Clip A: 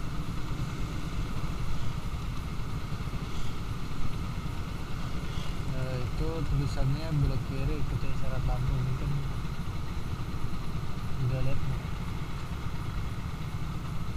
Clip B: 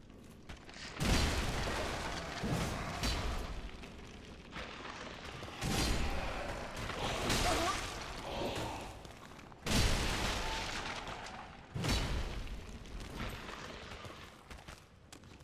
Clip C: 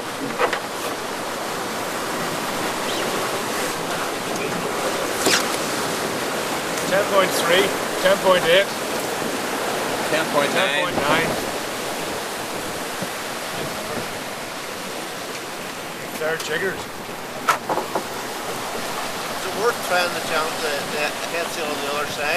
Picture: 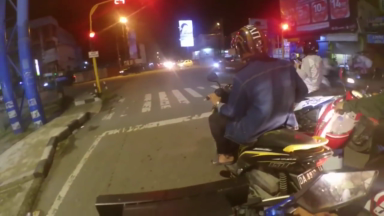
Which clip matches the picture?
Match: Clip A